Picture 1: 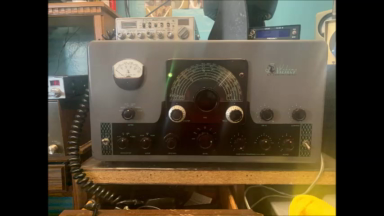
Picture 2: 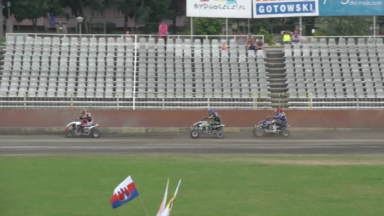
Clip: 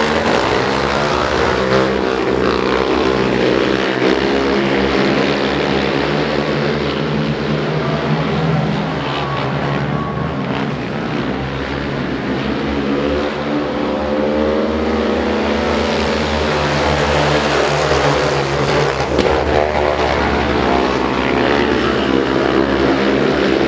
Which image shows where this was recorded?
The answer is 2